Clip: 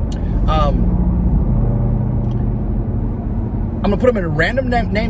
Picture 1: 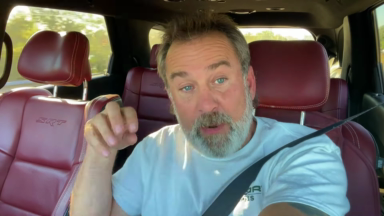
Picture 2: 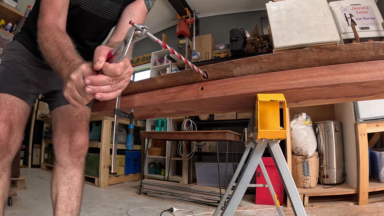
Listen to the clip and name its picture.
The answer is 1